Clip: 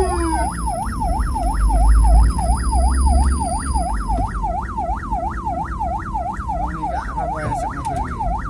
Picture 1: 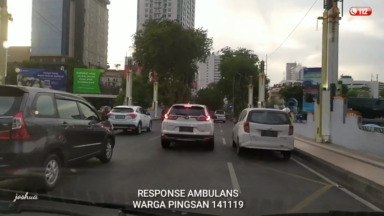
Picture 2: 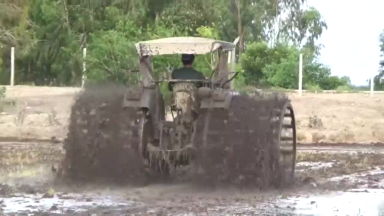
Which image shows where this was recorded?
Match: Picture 1